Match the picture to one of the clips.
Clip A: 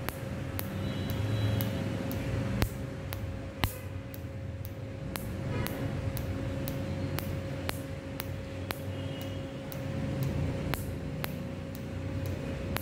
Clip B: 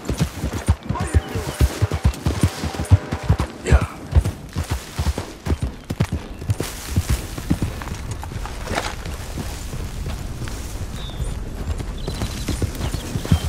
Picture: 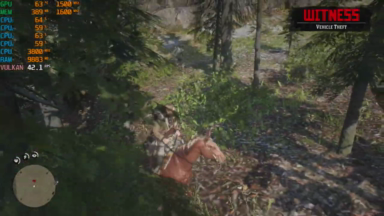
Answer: B